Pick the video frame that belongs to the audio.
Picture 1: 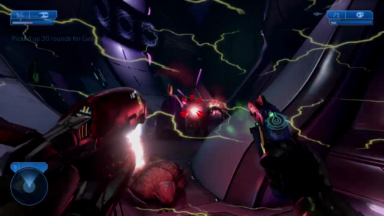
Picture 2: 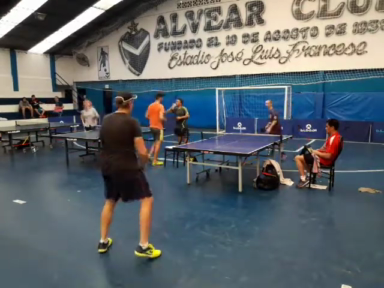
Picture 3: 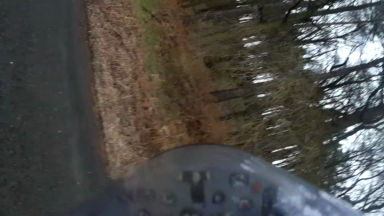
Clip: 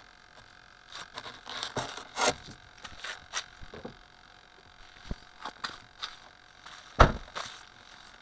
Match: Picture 3